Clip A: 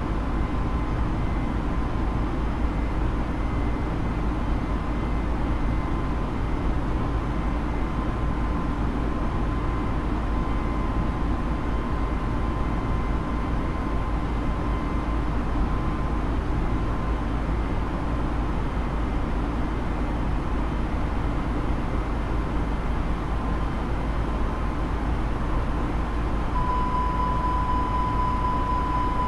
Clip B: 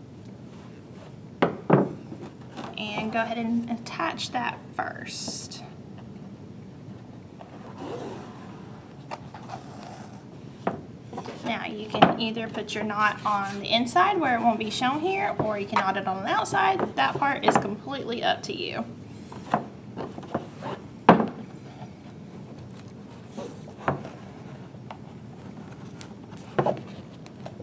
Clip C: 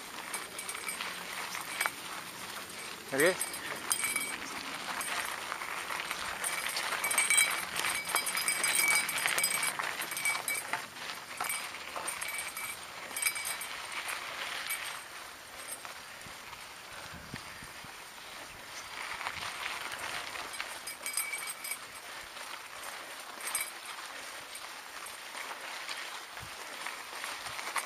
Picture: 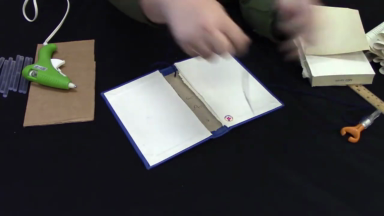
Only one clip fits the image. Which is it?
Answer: B